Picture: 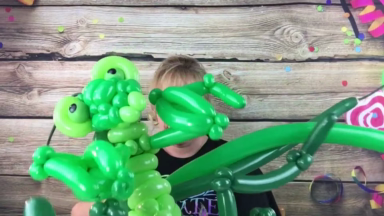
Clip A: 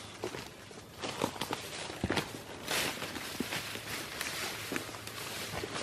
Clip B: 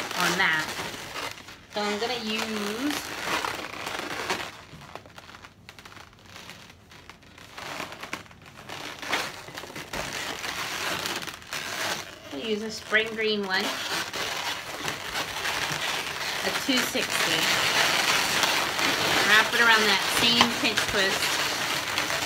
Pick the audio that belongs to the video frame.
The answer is B